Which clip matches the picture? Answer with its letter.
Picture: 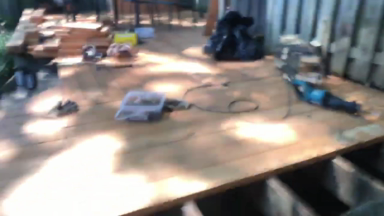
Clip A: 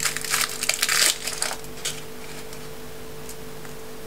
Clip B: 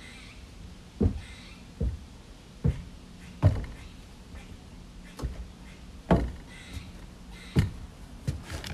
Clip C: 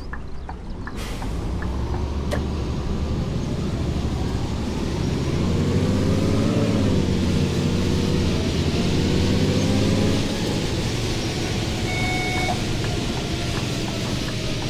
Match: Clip B